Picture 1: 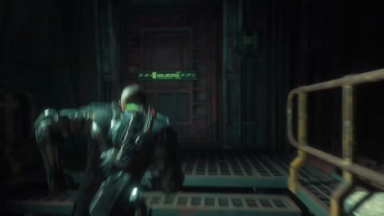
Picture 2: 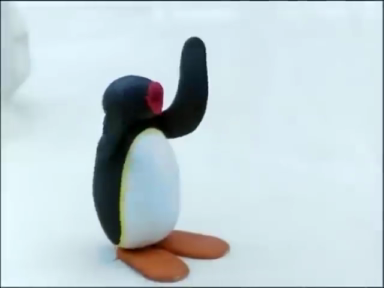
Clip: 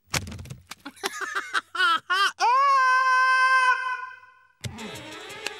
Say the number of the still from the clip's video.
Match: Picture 2